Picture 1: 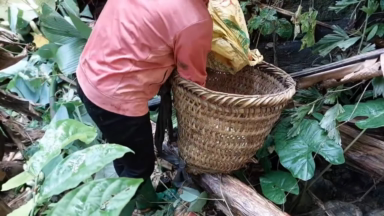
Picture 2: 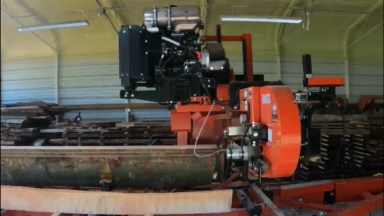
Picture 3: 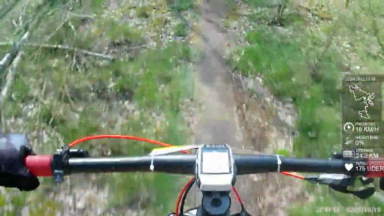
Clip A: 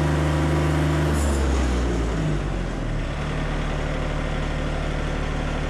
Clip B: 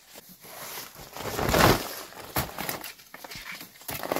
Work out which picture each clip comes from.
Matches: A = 2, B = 1